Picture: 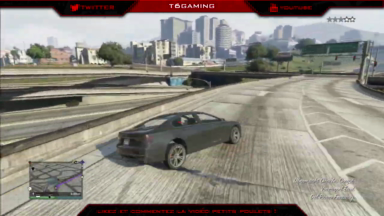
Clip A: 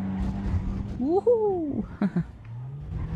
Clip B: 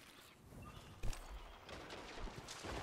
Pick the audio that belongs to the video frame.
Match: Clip A